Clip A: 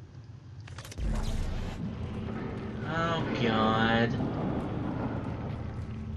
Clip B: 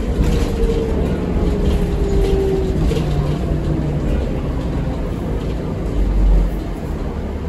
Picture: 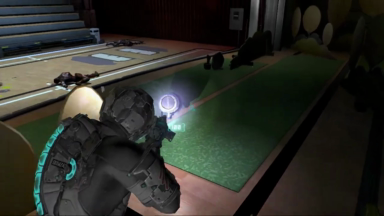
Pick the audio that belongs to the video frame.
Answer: A